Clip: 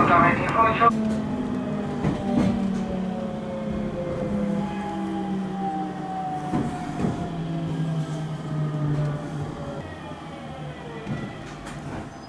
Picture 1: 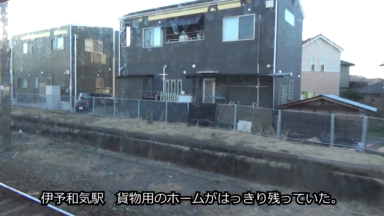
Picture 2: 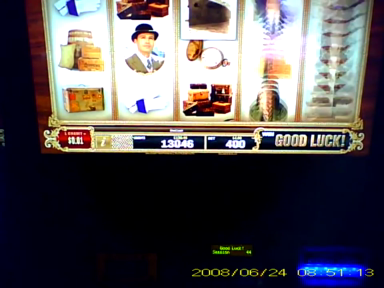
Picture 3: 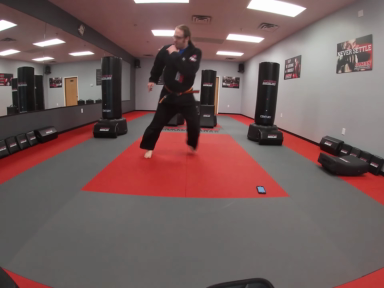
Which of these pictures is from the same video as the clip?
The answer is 1